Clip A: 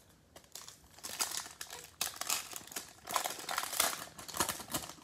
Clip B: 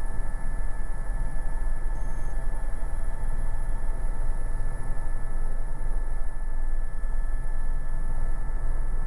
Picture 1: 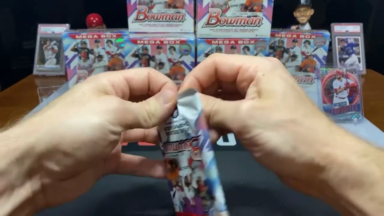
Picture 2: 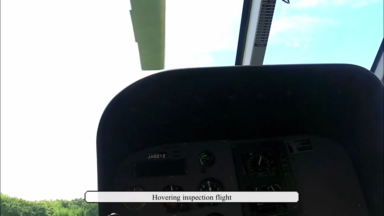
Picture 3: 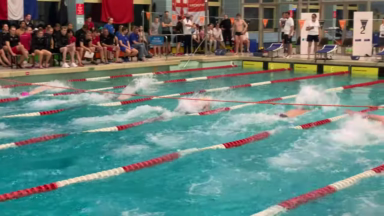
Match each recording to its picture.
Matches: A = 1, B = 2